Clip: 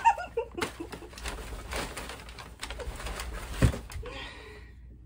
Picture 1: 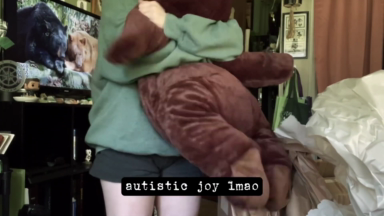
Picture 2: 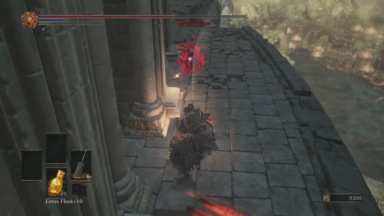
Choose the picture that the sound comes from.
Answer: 1